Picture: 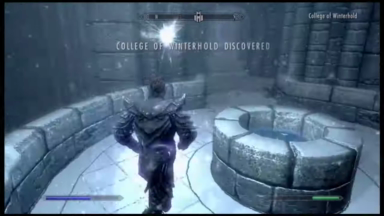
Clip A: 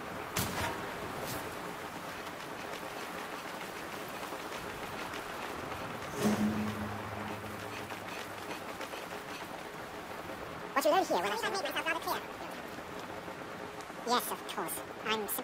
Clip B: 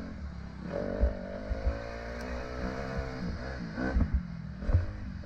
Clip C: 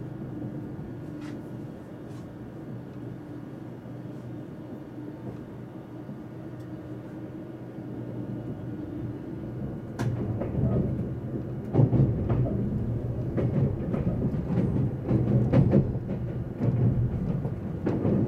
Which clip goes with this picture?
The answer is A